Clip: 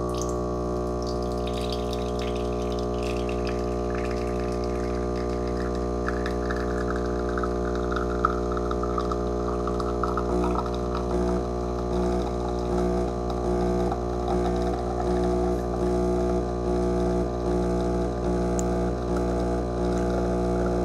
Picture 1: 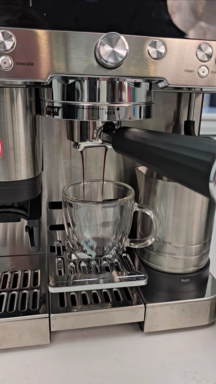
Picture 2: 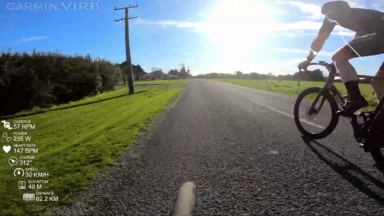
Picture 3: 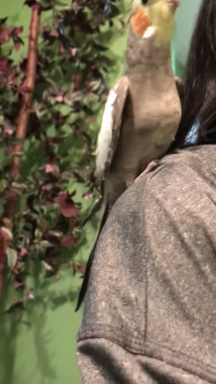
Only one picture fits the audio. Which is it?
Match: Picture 1